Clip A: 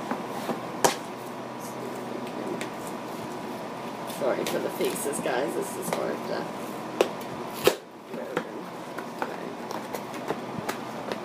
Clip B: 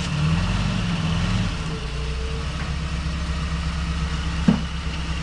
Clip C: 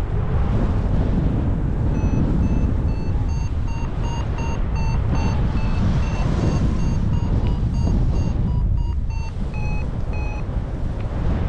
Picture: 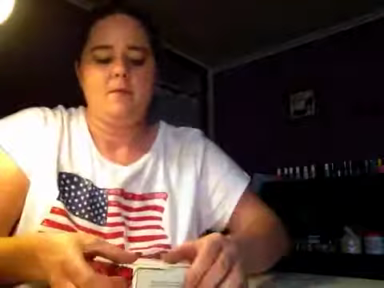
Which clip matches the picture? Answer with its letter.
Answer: A